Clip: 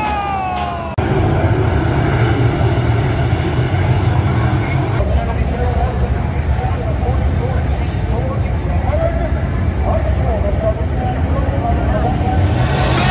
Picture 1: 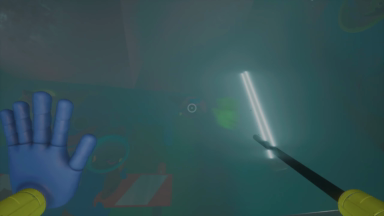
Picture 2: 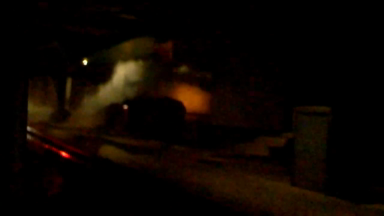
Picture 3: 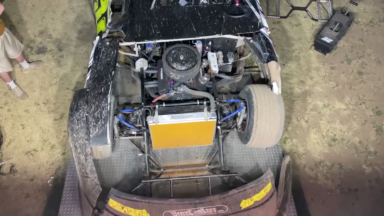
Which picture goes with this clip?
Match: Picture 3